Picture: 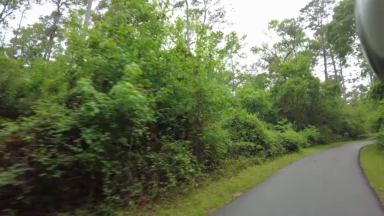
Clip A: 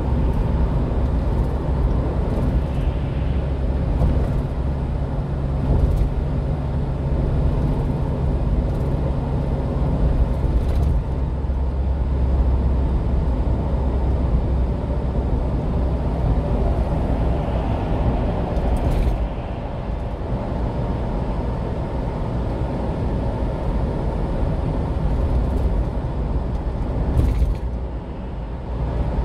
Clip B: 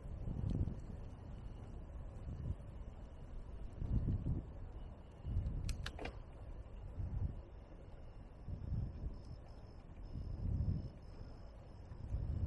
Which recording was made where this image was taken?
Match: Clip B